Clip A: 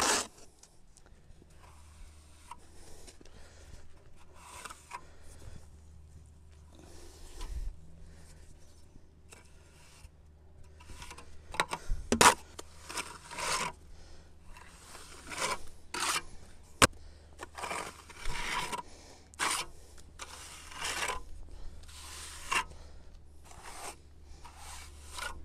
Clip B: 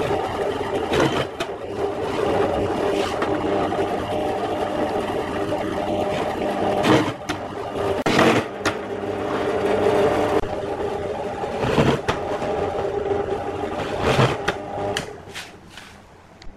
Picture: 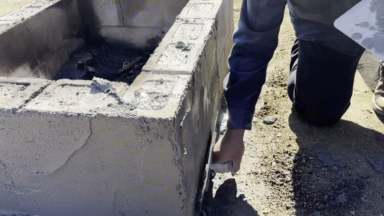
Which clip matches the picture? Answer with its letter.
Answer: A